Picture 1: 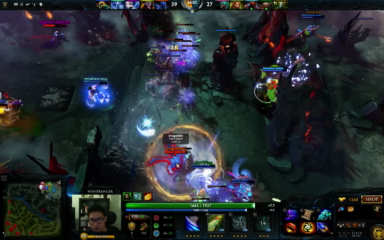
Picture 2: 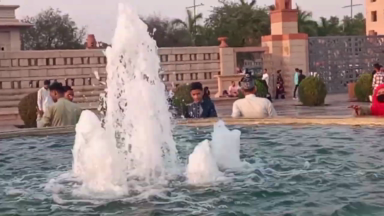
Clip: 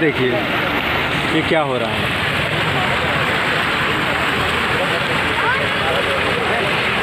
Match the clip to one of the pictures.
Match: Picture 2